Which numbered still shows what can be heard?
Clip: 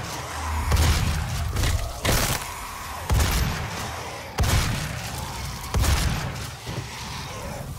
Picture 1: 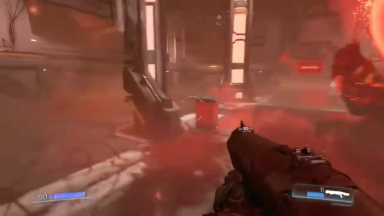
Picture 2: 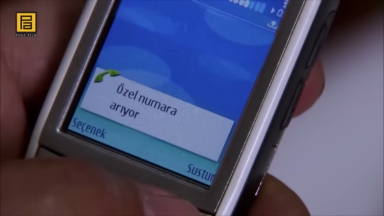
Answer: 1